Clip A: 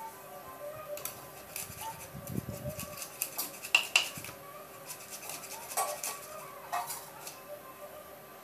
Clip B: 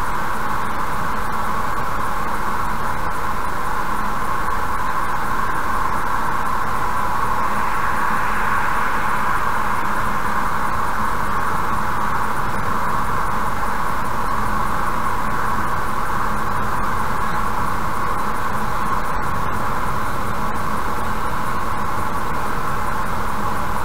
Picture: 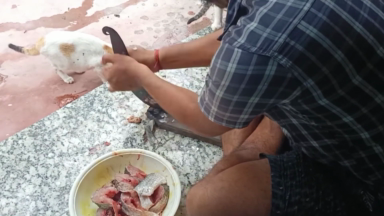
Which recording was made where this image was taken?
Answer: A